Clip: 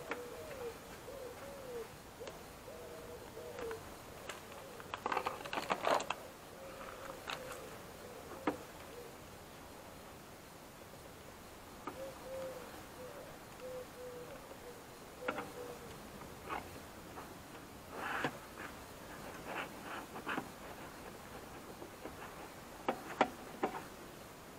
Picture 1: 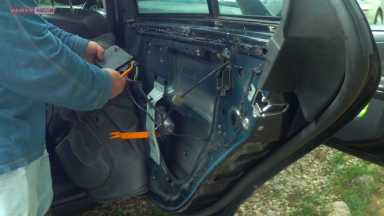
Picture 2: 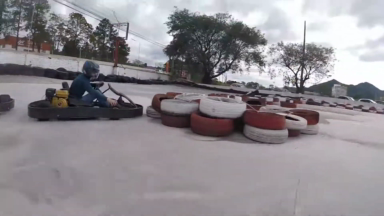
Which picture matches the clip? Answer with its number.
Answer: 1